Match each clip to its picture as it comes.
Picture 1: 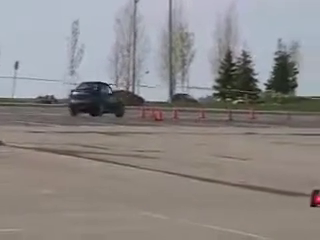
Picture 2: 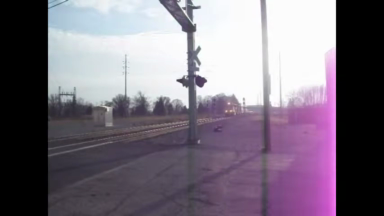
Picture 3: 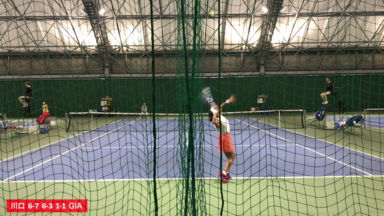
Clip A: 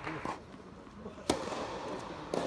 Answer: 3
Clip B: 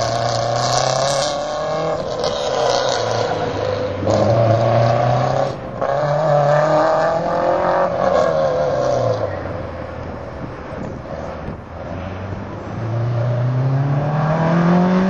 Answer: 1